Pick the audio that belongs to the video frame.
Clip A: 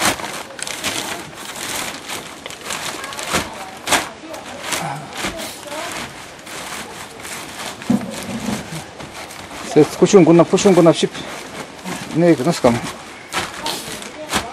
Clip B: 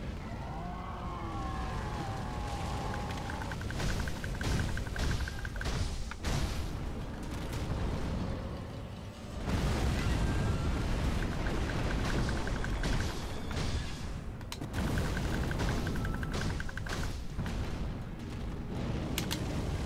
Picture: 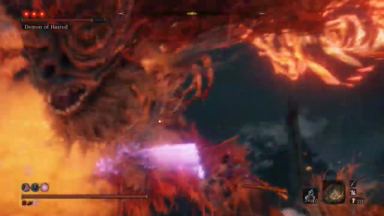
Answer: B